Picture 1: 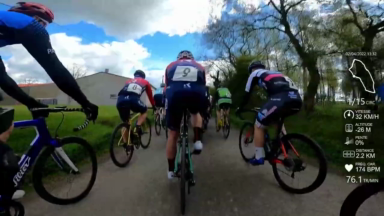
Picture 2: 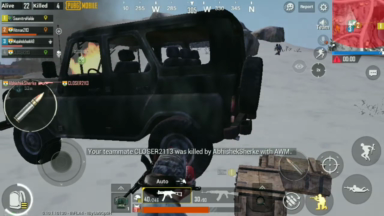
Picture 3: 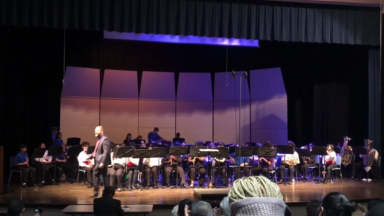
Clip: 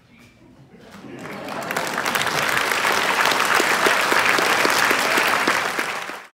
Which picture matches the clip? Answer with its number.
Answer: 3